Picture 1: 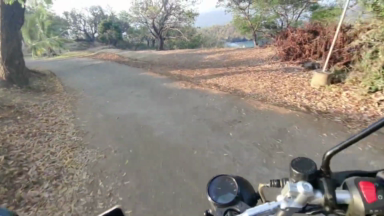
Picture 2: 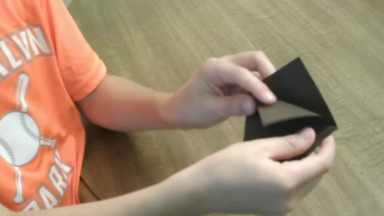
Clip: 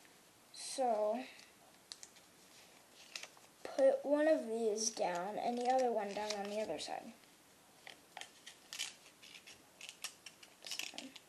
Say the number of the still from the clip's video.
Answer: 2